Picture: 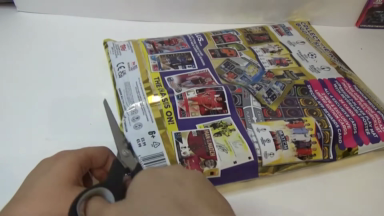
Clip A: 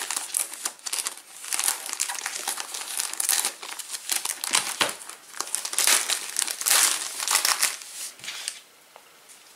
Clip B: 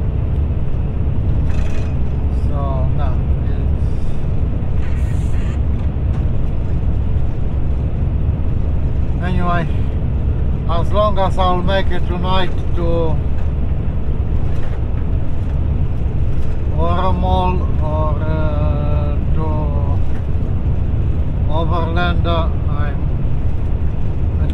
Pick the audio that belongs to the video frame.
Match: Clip A